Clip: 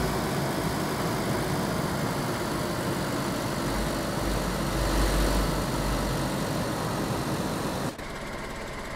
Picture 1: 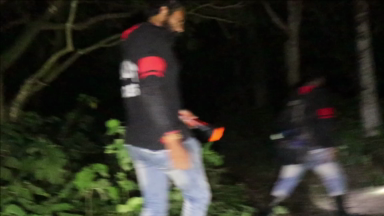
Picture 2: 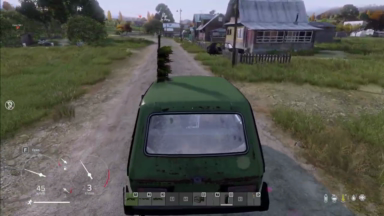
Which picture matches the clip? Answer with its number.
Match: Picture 2